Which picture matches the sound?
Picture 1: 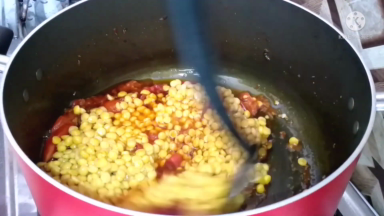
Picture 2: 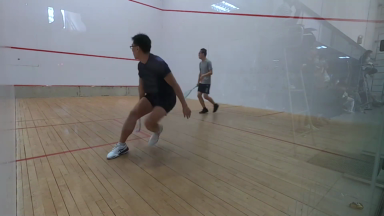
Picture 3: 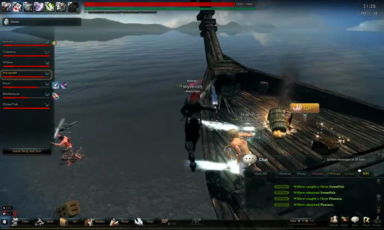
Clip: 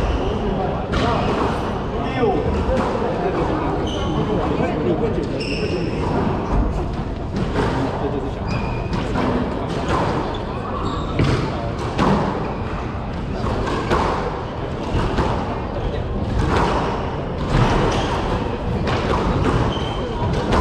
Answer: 2